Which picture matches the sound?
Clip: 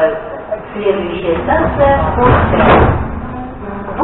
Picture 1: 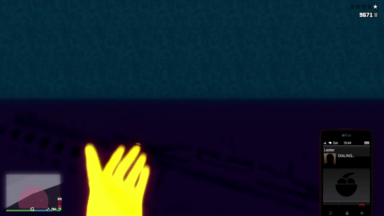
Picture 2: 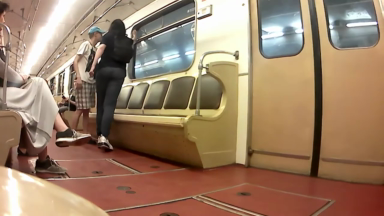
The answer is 2